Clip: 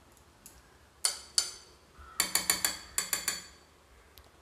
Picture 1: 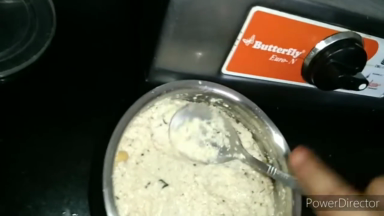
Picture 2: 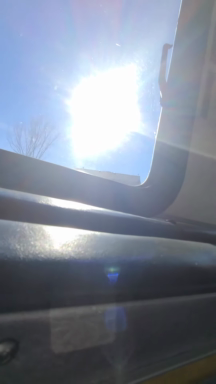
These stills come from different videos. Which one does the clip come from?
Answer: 1